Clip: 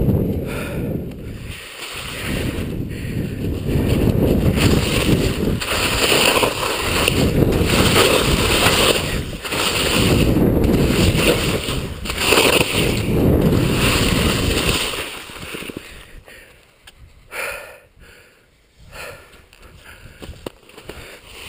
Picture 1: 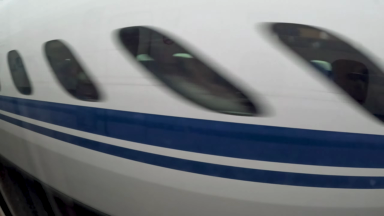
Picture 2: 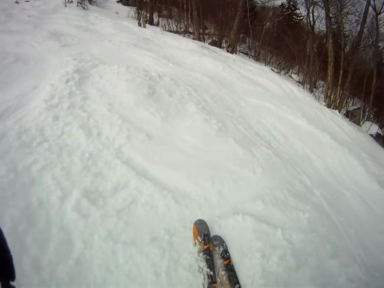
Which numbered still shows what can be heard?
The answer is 2